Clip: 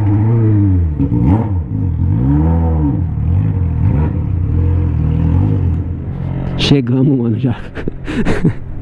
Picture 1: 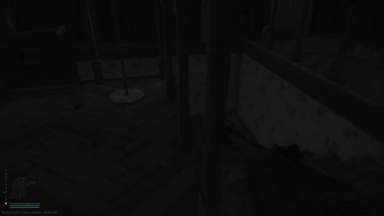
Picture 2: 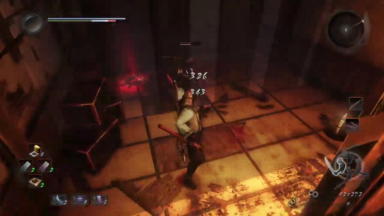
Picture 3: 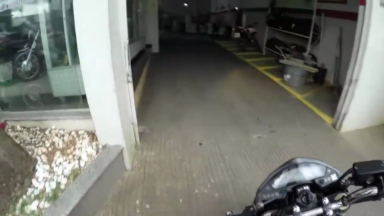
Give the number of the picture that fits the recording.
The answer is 3